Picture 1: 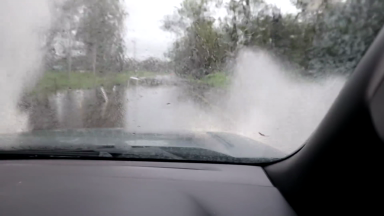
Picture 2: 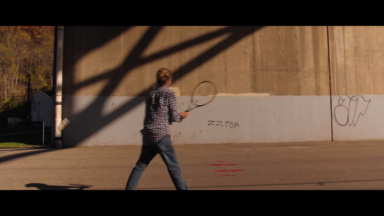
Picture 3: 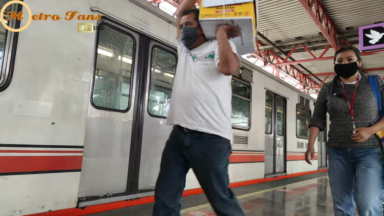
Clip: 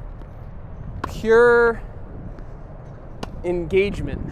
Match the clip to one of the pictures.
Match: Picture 2